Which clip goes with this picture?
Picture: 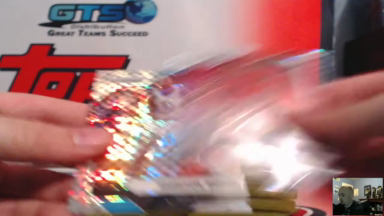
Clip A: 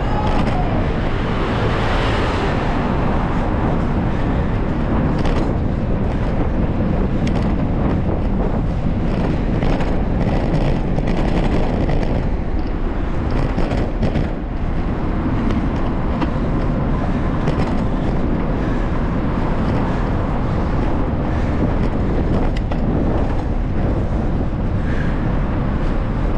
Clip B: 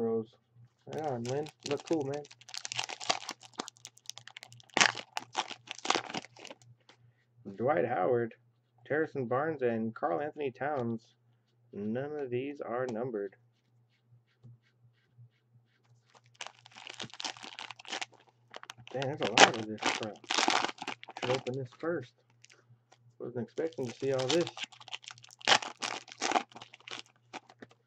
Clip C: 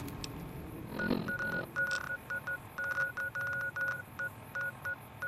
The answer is B